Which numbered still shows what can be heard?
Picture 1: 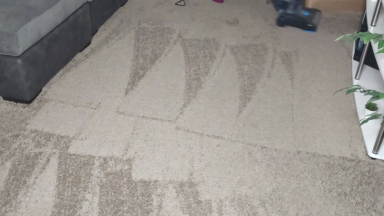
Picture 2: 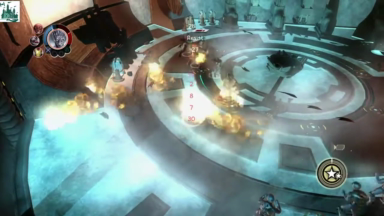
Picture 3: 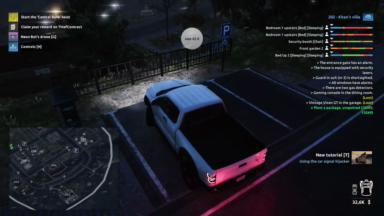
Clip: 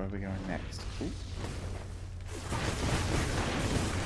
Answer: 2